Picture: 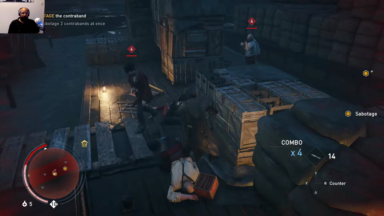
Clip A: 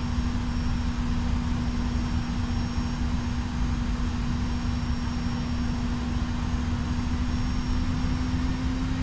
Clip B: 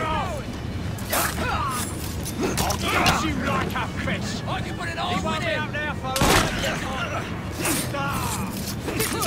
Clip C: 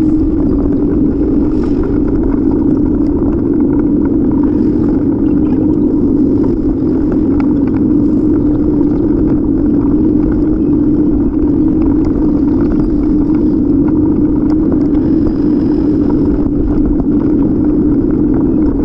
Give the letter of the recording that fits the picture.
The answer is B